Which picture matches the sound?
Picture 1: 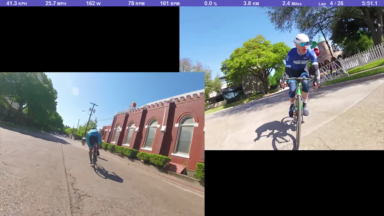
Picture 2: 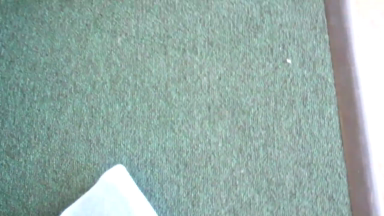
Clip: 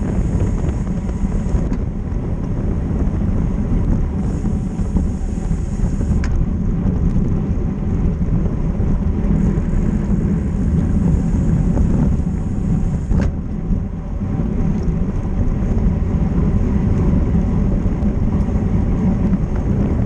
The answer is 1